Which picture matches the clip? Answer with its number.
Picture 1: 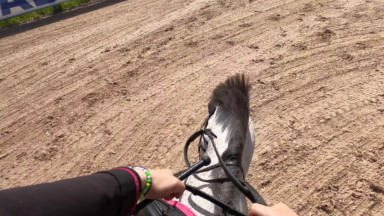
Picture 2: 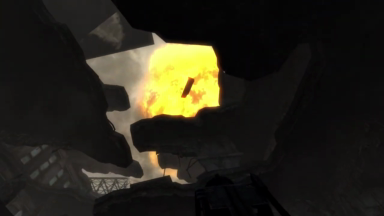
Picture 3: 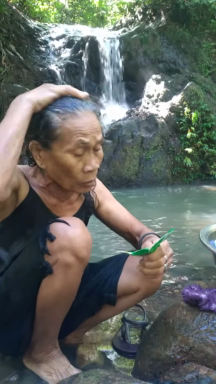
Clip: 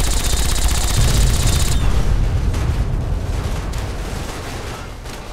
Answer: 2